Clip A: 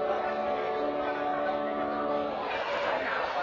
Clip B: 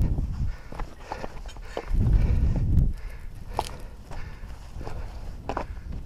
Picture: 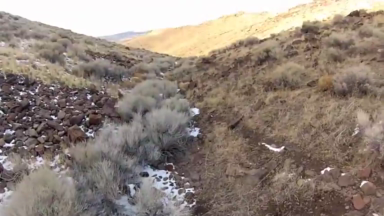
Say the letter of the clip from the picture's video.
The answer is B